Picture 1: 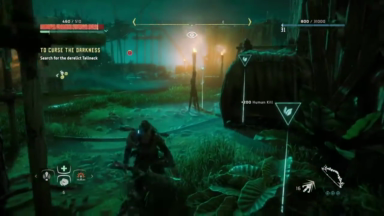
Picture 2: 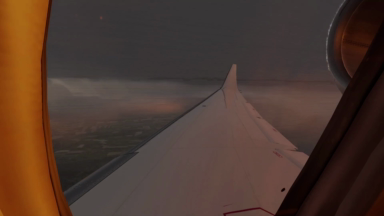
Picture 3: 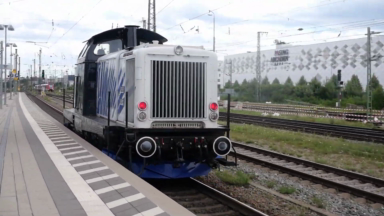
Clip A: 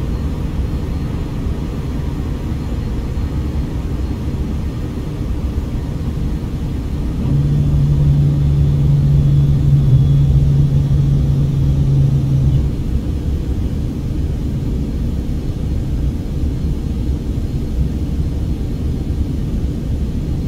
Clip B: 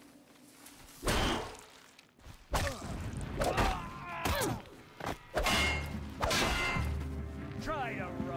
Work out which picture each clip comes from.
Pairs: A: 2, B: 1